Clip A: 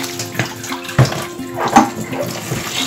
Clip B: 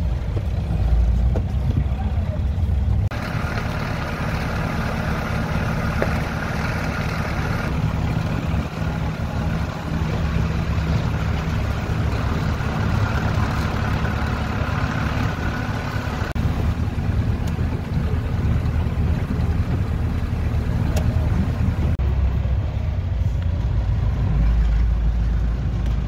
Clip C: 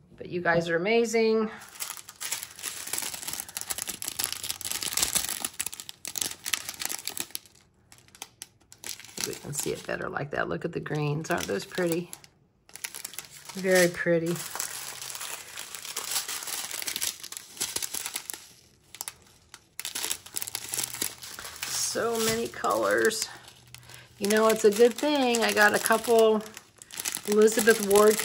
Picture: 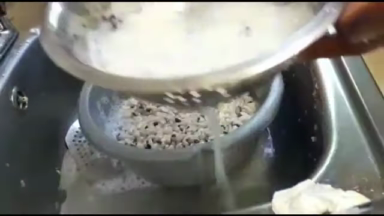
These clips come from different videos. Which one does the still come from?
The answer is A